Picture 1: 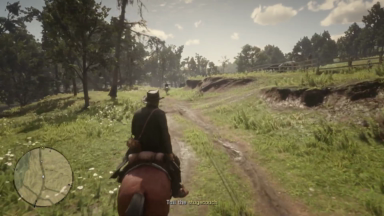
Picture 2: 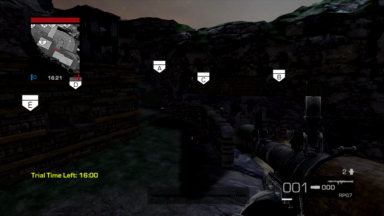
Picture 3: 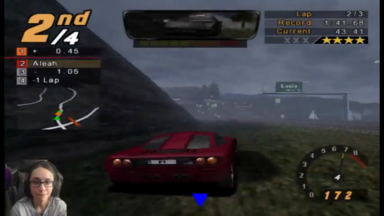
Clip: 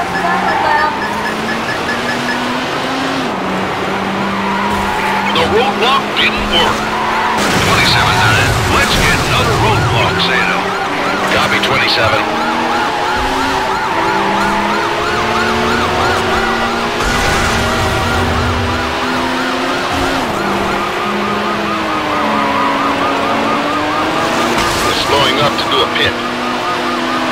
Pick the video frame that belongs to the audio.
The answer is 3